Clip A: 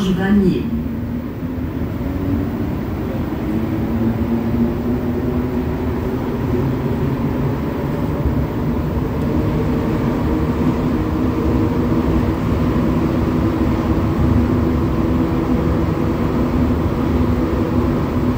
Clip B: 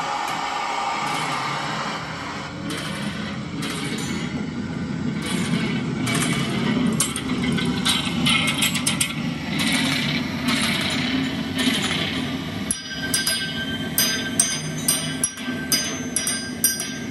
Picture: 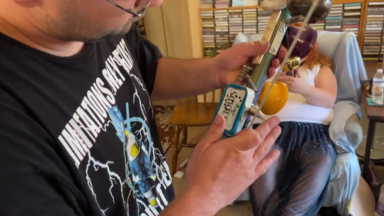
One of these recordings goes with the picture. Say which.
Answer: B